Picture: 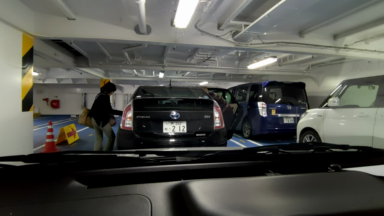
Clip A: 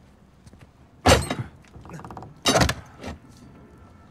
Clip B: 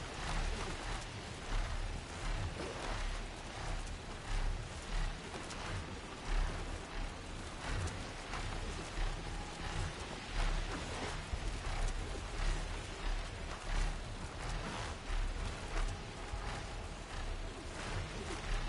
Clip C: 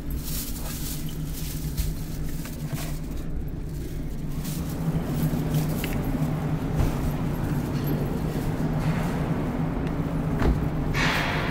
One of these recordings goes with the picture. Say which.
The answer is C